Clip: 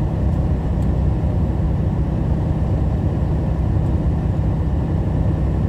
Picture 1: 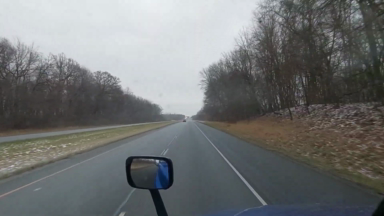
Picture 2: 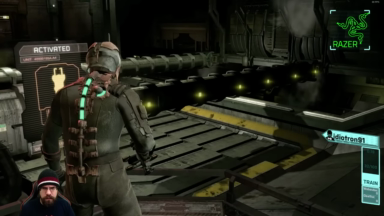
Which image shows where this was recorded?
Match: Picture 1